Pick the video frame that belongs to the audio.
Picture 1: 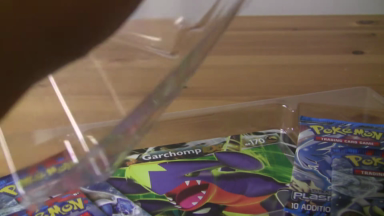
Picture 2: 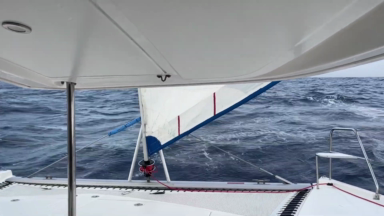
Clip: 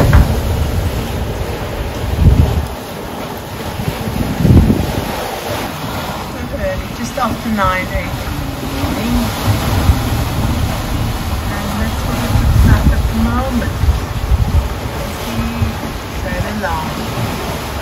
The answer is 2